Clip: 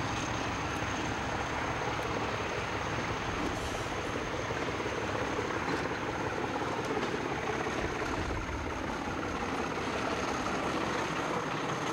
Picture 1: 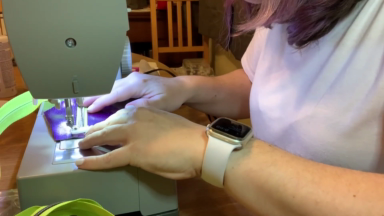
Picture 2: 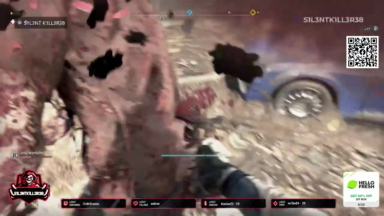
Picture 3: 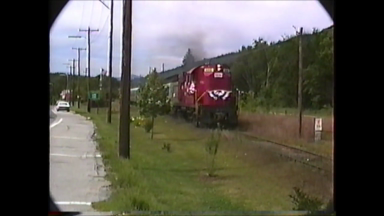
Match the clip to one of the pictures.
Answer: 3